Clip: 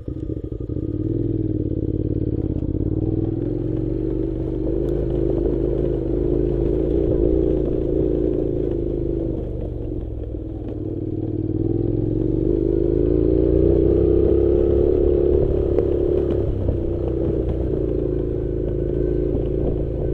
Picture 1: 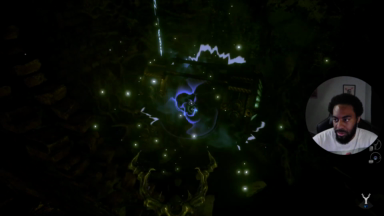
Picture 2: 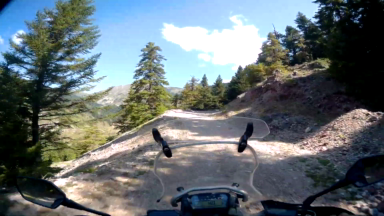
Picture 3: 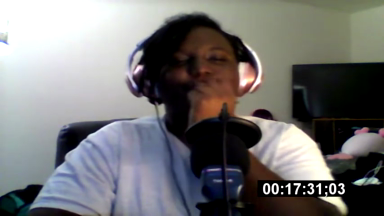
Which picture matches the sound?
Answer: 2